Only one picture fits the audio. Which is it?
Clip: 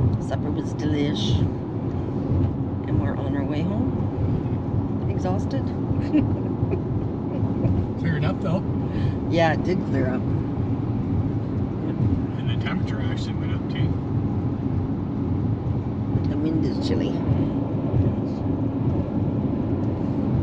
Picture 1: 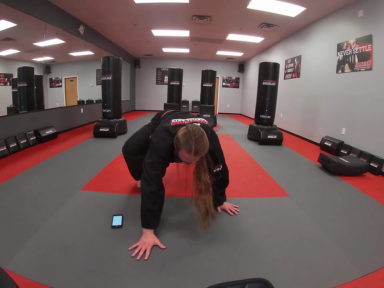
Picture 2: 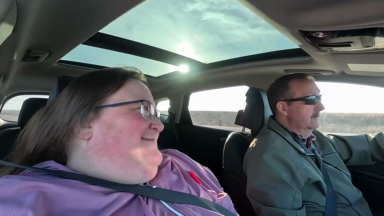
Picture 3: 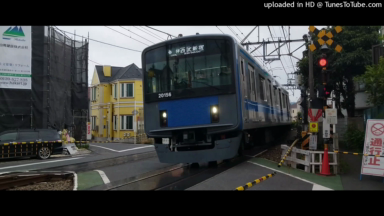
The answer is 2